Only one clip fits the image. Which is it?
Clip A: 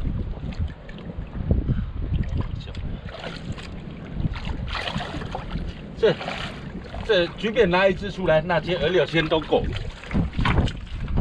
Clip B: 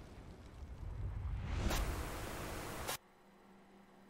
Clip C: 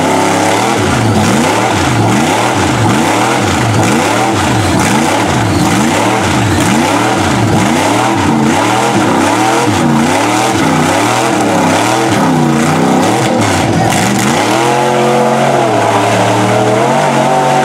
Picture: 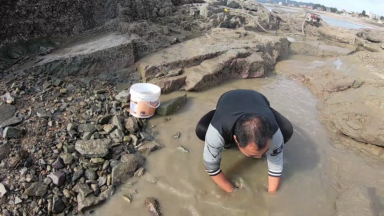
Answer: A